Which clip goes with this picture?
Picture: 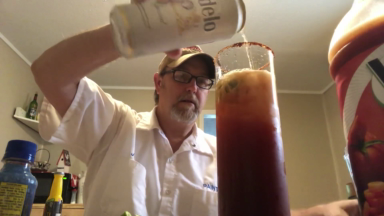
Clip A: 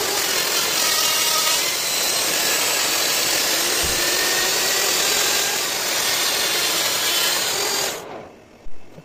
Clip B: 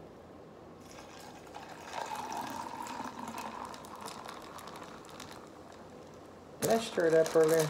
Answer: B